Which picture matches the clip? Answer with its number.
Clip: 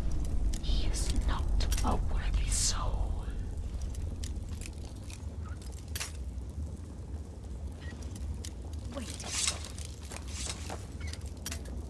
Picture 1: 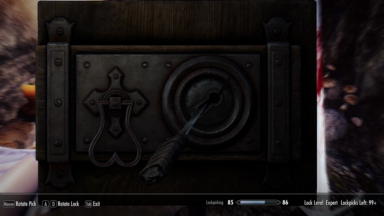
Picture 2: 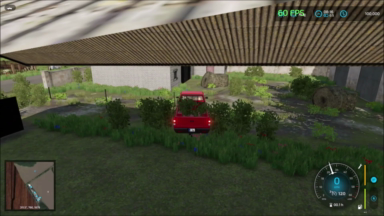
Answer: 1